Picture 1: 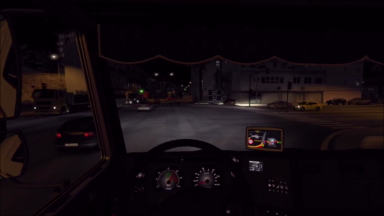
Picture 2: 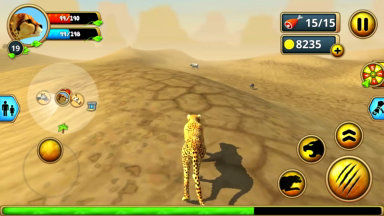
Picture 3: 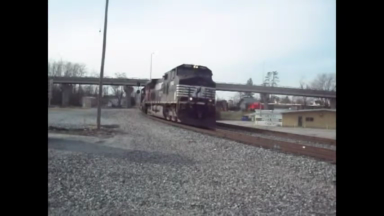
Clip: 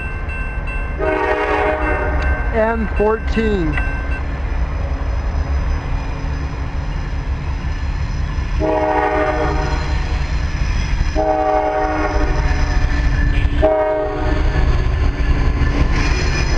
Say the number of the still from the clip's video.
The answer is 3